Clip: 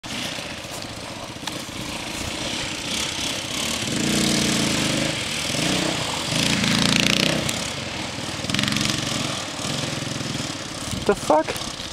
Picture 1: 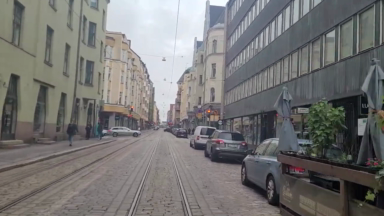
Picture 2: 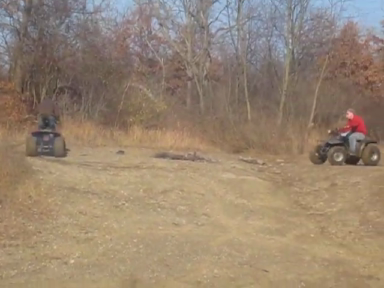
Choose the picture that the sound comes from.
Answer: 2